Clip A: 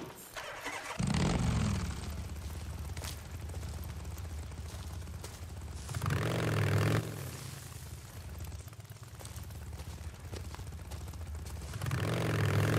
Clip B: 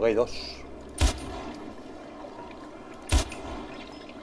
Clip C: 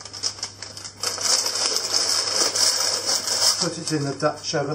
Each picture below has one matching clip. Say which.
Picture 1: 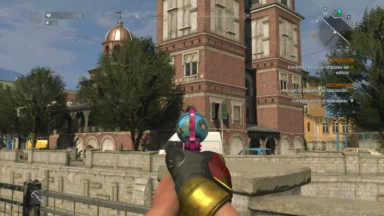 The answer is B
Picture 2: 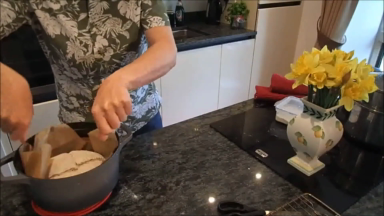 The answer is C